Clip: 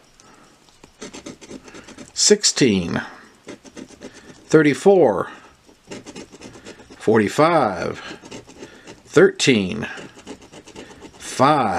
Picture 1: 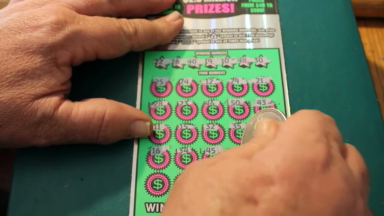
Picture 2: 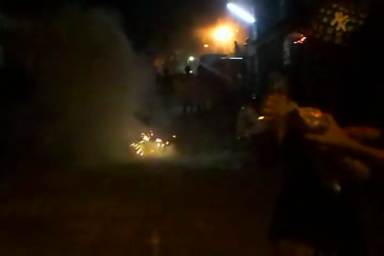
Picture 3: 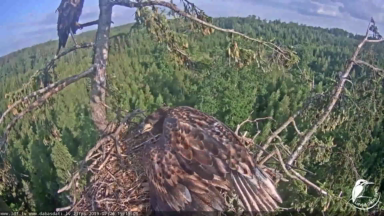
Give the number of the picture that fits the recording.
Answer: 1